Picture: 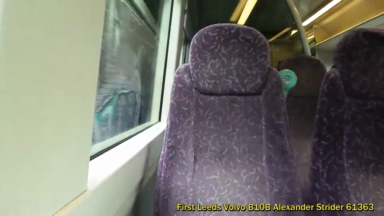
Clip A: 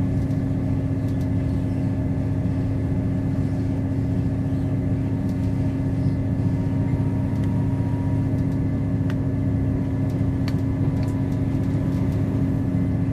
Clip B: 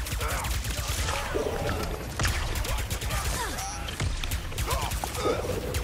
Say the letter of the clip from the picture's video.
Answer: A